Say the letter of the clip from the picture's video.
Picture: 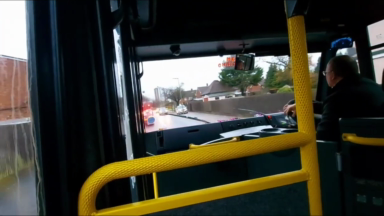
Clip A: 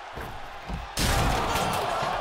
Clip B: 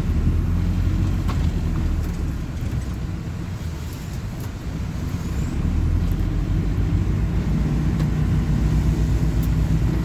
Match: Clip B